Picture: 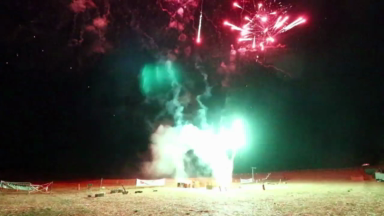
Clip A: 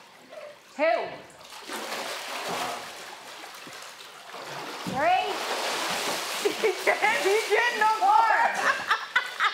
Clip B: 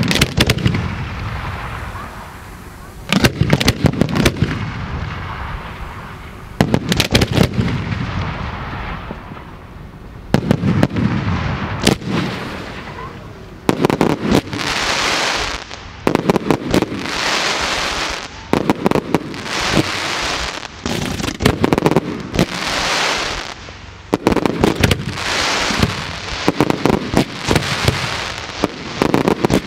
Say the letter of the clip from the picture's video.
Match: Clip B